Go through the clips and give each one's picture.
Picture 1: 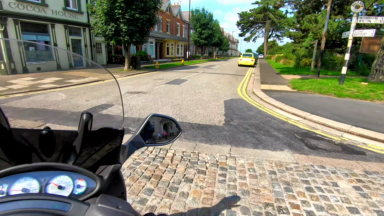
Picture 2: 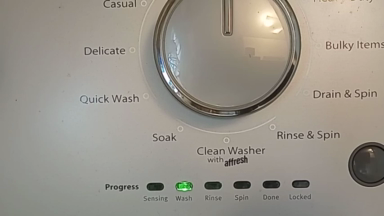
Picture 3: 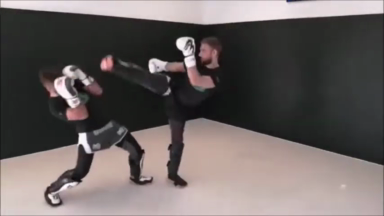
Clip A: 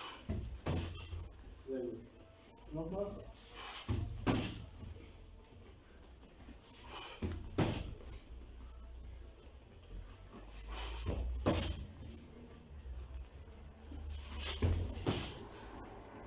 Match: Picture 3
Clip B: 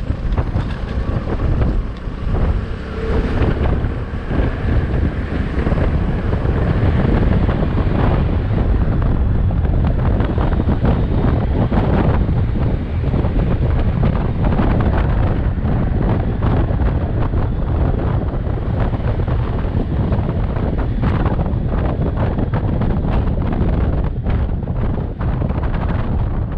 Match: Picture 1